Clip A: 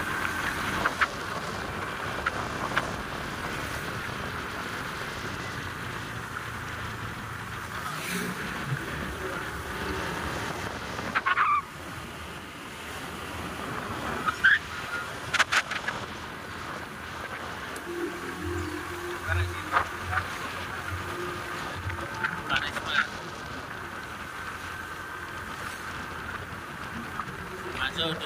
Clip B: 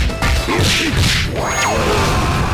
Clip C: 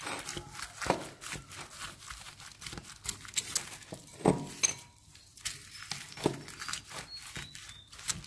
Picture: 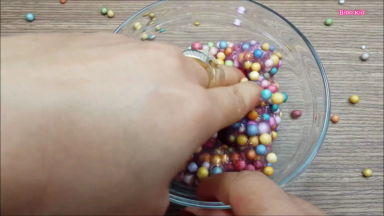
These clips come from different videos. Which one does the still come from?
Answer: C